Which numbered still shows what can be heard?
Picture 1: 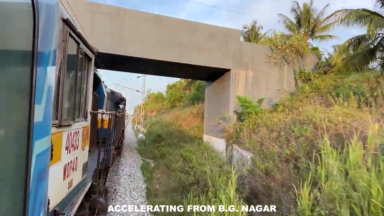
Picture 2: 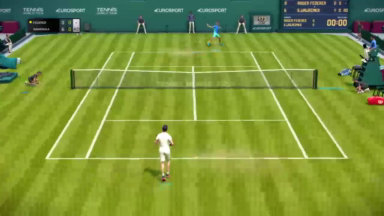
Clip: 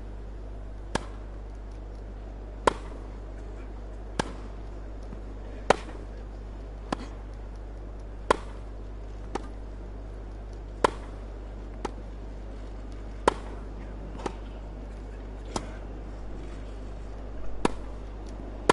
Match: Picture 2